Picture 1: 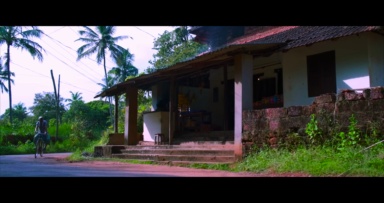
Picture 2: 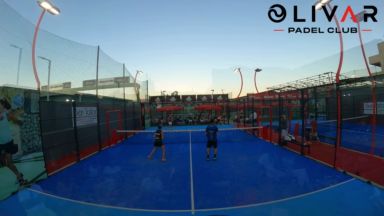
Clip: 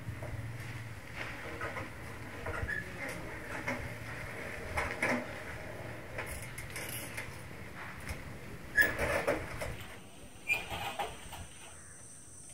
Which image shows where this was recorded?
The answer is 1